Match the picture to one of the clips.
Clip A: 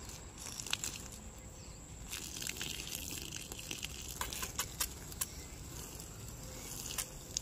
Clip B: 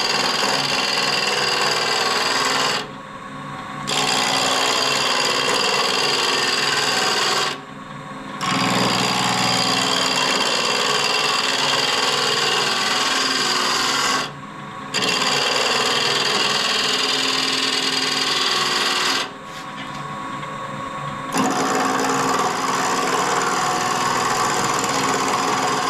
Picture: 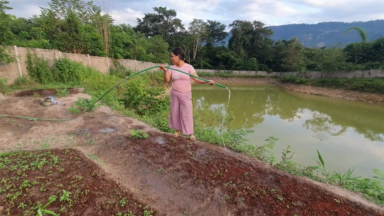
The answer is A